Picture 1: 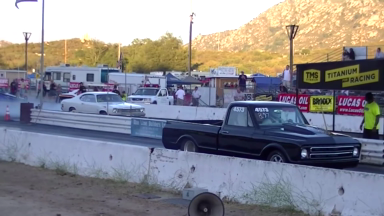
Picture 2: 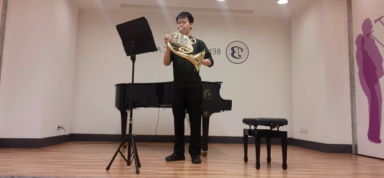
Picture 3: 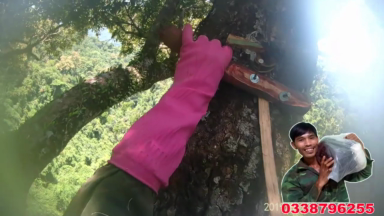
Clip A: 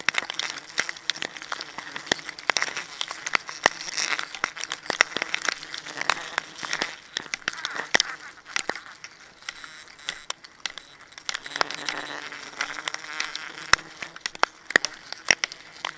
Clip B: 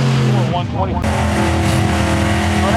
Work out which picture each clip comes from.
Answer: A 3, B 1